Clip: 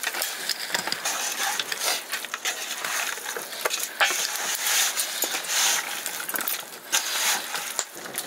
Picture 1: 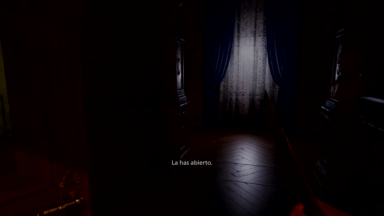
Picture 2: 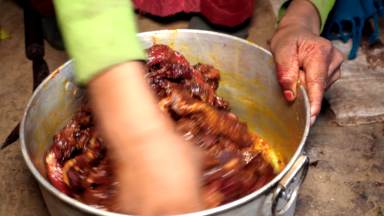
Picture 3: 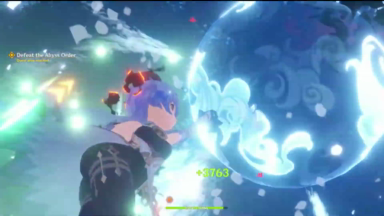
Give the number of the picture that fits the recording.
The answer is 2